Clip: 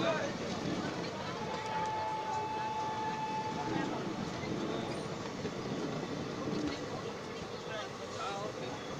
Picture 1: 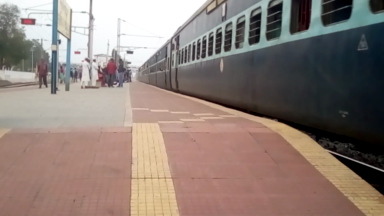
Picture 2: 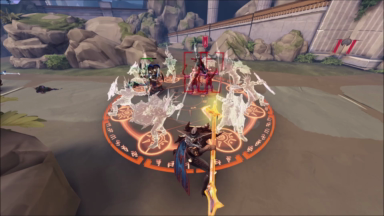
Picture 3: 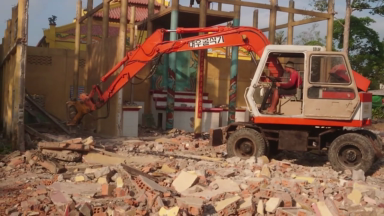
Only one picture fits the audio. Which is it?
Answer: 1